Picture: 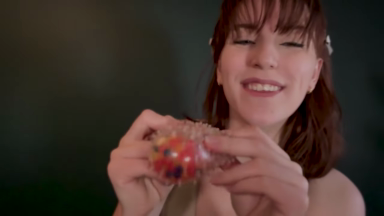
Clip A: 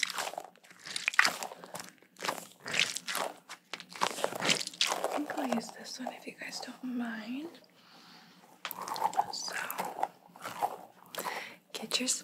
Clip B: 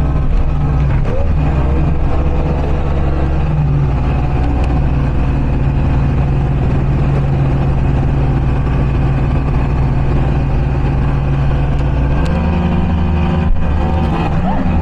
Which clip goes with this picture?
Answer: A